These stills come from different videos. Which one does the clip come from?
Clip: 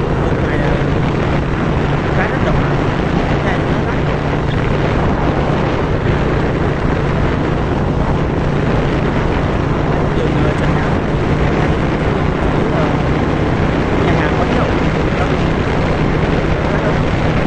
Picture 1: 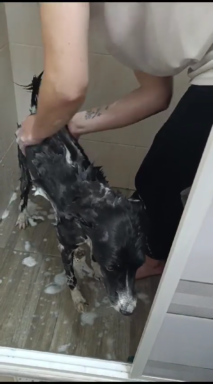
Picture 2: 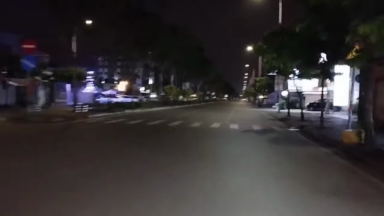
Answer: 2